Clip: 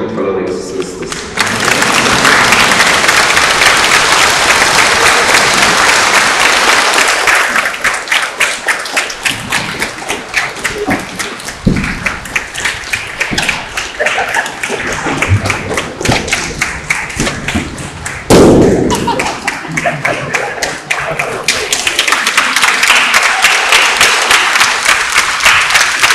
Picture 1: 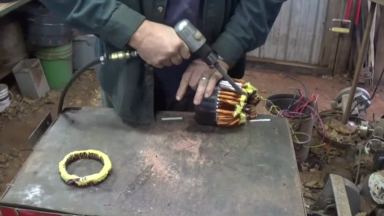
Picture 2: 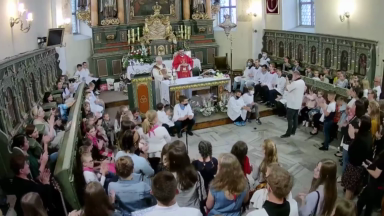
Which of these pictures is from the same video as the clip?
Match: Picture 2